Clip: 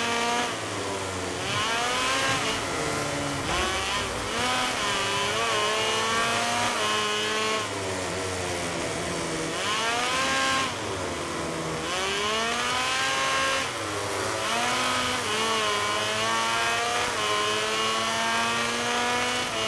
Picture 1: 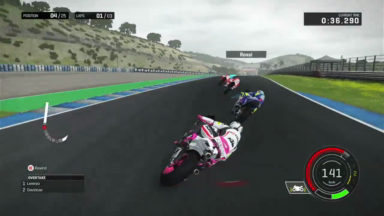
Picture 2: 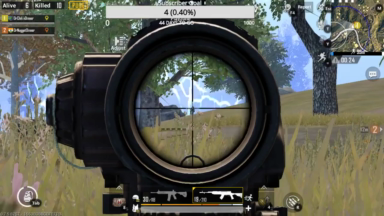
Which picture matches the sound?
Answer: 1